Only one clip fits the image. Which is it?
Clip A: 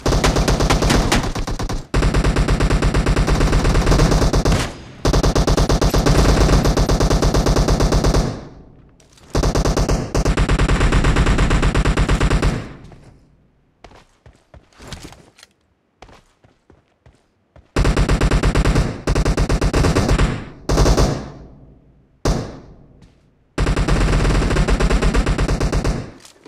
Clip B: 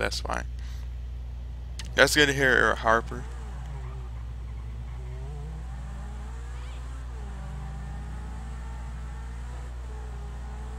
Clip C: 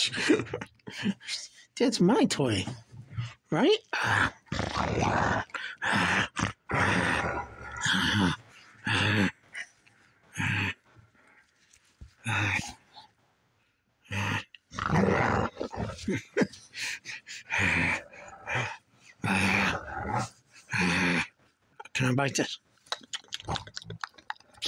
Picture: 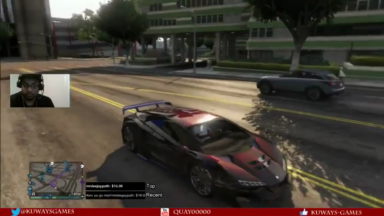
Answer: B